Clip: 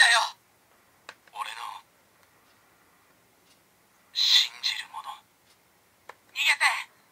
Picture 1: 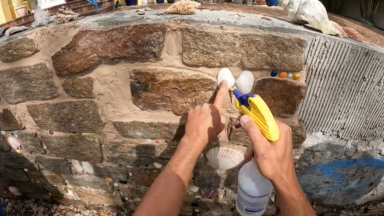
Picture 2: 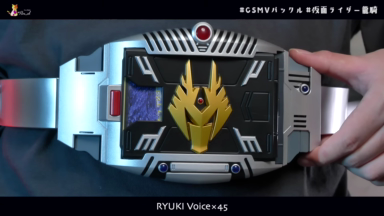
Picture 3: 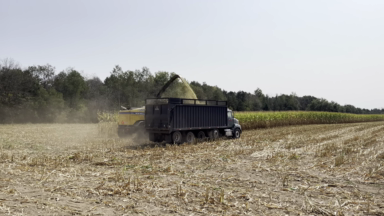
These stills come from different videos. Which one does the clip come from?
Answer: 2